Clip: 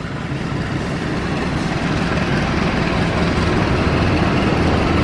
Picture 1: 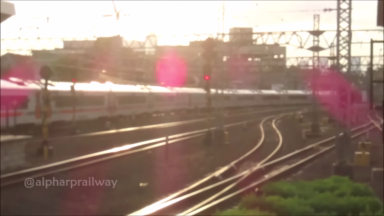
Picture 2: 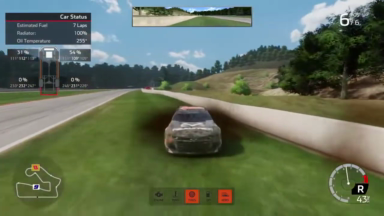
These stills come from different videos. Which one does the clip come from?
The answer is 1